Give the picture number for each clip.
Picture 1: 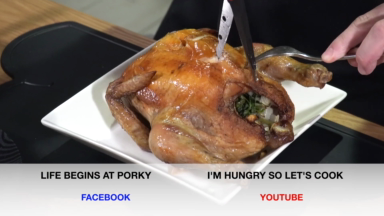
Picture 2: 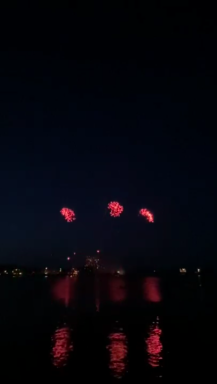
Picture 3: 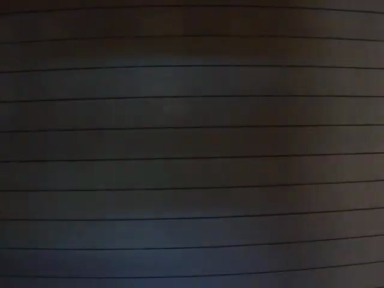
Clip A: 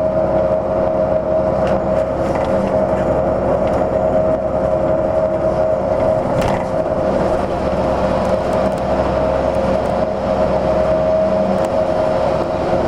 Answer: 3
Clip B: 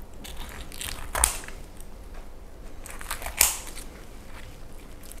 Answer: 1